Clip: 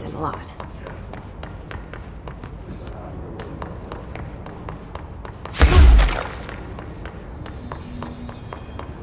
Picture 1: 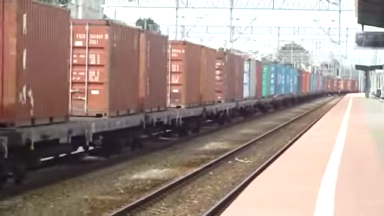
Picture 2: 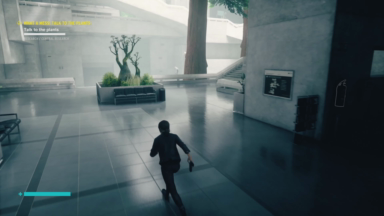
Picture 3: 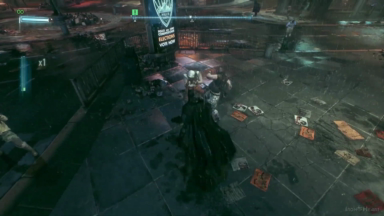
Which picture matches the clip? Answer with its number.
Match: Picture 2